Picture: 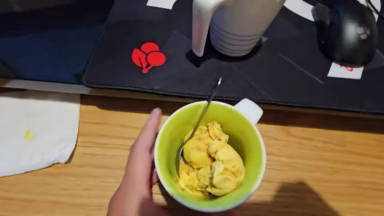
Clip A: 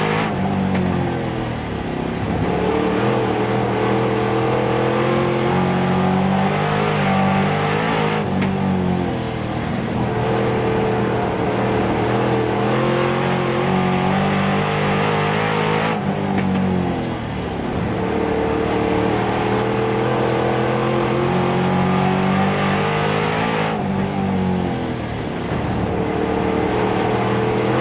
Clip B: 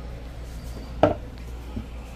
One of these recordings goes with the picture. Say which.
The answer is B